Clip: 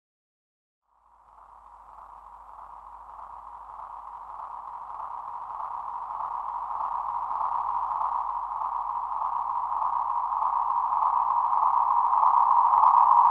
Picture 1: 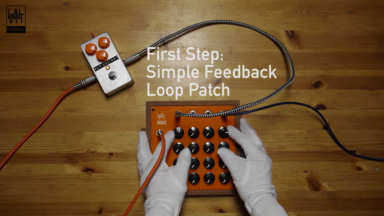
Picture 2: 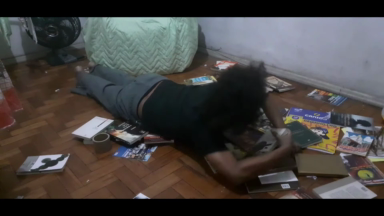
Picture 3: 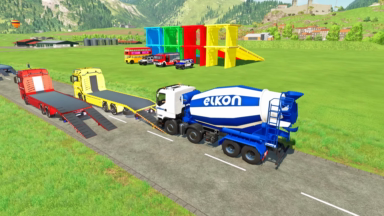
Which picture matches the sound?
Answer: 1